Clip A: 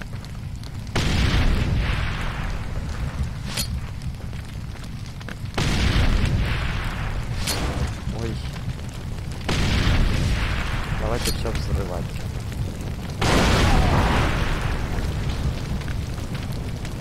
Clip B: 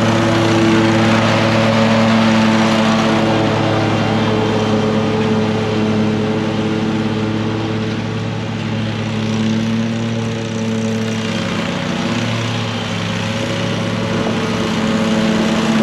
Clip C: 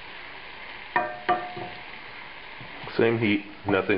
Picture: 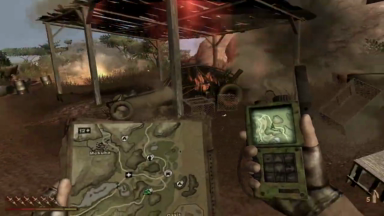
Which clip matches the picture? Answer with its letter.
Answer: A